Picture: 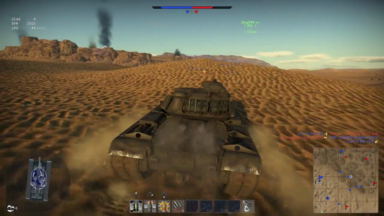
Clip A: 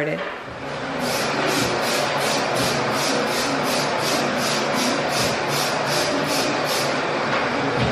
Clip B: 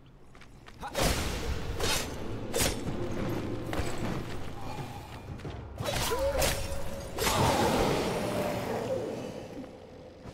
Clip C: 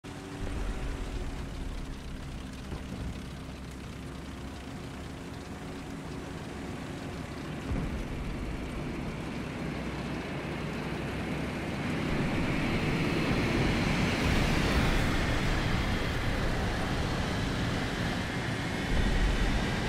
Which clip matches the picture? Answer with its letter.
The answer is C